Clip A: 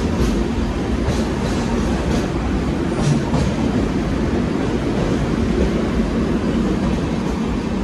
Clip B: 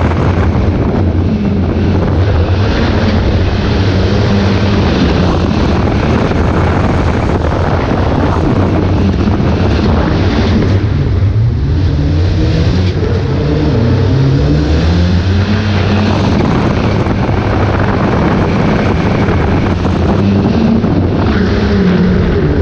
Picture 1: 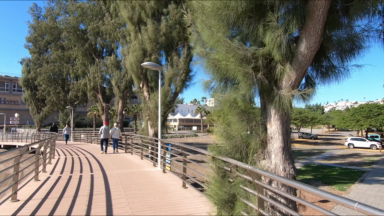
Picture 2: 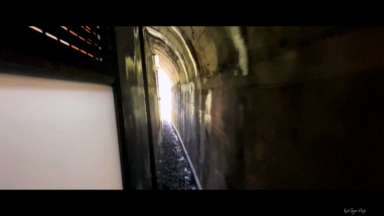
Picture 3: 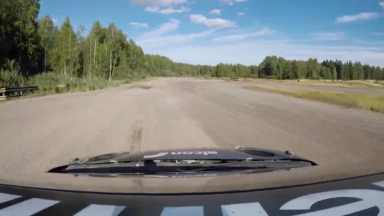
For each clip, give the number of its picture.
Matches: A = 2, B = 3